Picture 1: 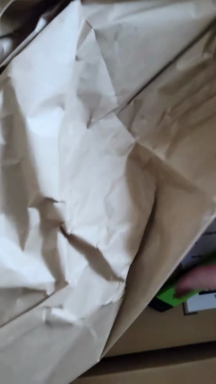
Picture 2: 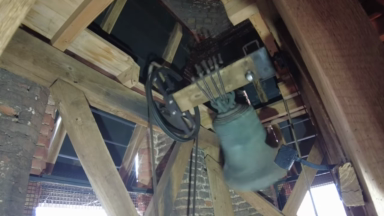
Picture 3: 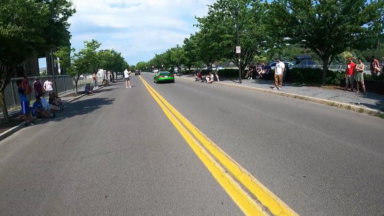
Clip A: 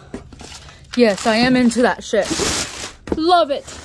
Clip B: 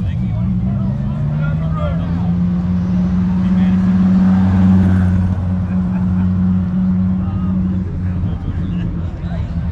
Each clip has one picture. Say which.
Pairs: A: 1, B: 3